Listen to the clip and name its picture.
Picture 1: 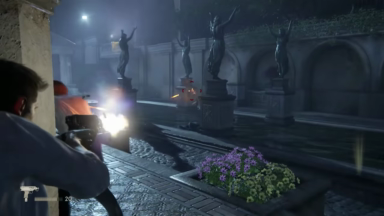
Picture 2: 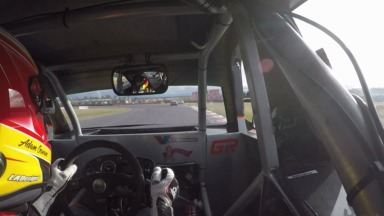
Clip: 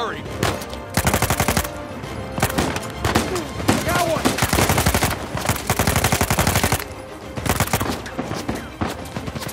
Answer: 1